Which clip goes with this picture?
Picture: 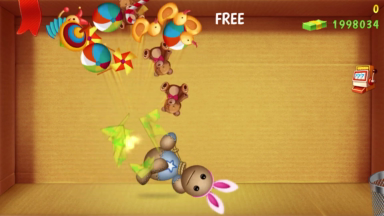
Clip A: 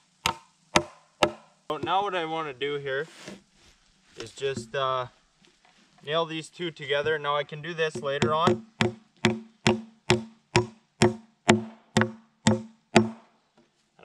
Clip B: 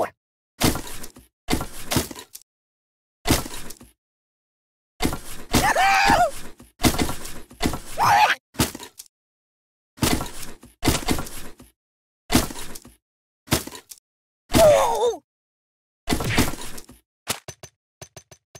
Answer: B